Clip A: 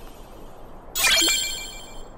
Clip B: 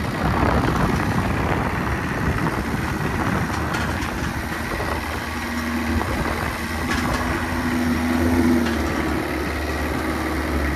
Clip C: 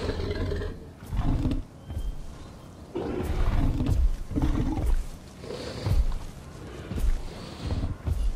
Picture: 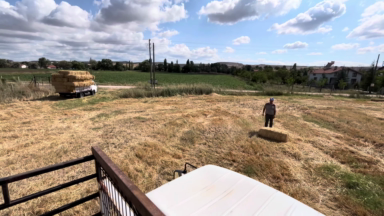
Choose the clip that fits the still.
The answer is B